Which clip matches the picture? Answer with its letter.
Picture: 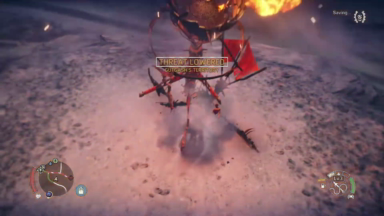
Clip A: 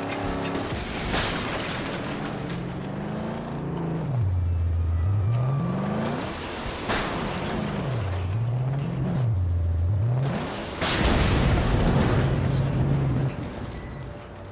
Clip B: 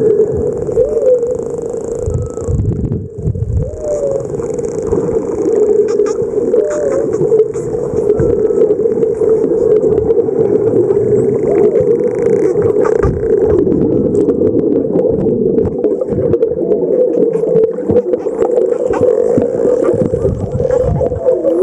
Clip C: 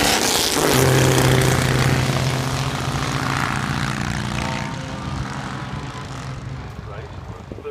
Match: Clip A